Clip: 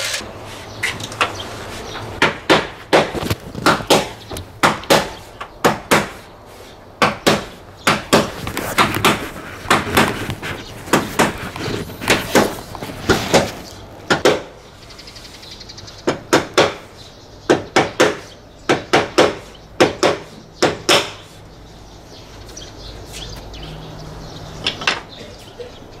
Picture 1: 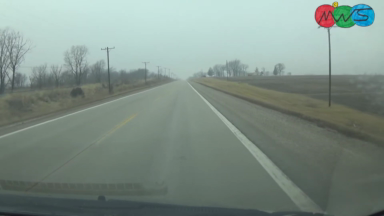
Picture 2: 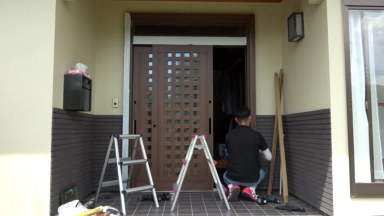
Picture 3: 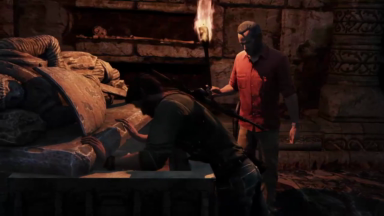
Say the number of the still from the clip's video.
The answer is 2